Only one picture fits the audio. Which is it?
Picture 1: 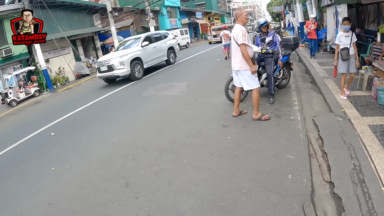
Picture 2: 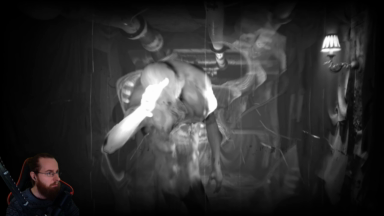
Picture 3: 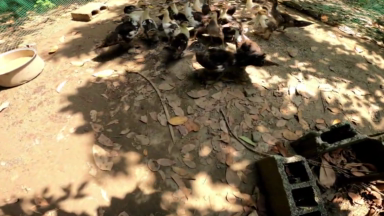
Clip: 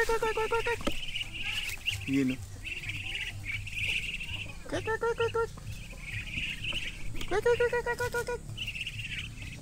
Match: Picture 3